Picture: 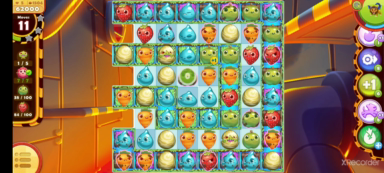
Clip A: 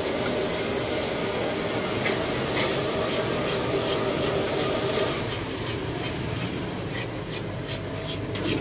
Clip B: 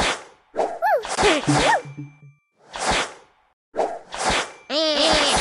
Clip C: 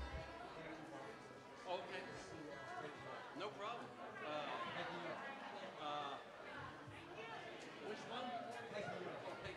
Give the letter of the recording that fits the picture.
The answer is B